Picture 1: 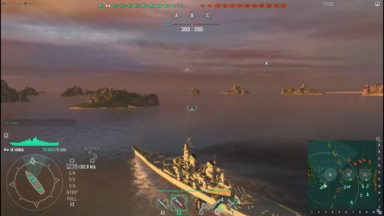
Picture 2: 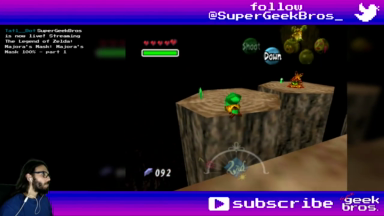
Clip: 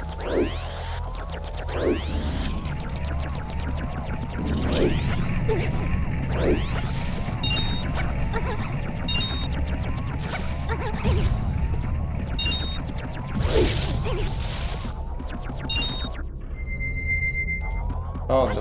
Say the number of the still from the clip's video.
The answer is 2